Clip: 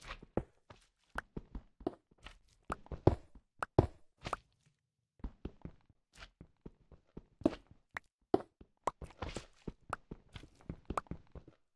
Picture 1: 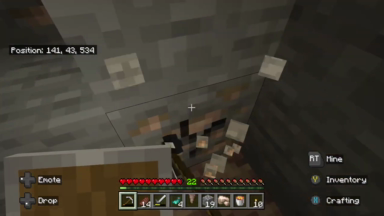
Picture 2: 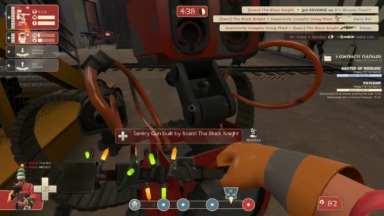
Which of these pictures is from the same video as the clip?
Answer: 1